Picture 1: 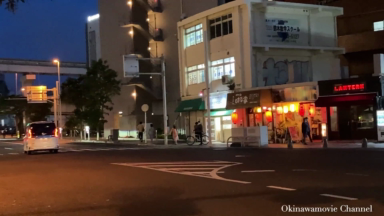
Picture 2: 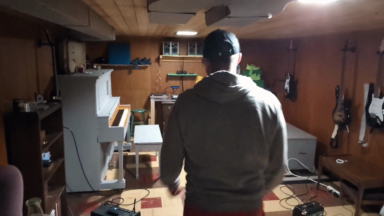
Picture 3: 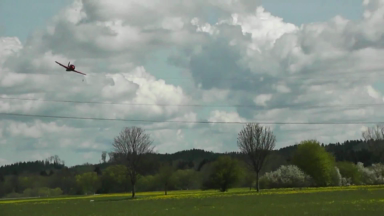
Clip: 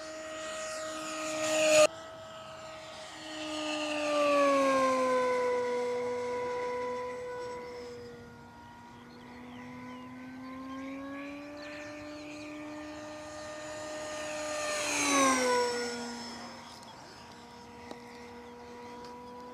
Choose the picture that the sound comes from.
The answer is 3